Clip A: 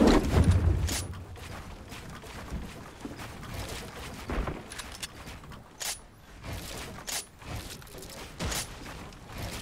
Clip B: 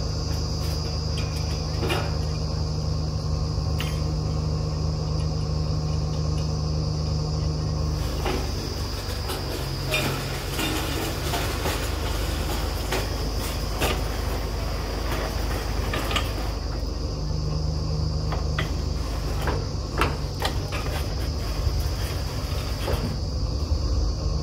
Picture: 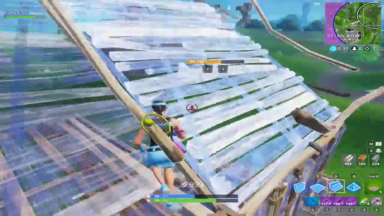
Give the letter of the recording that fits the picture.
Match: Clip A